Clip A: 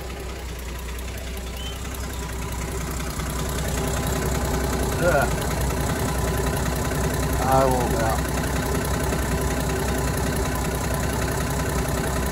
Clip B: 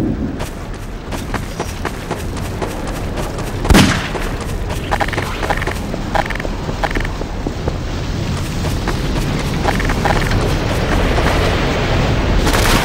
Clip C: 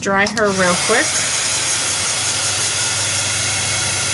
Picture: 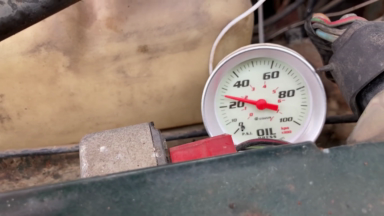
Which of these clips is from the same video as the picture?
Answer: A